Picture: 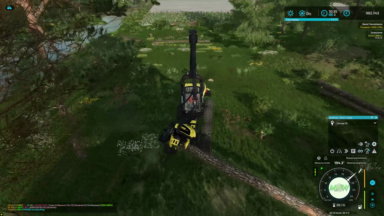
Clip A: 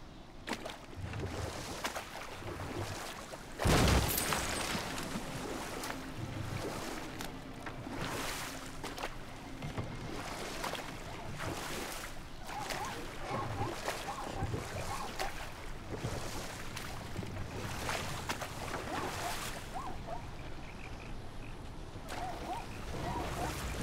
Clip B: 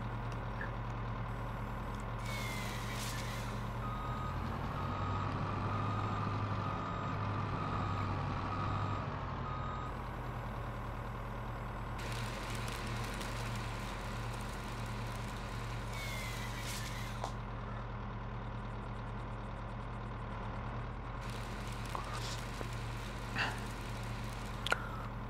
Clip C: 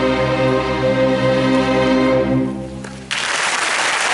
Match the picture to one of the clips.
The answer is B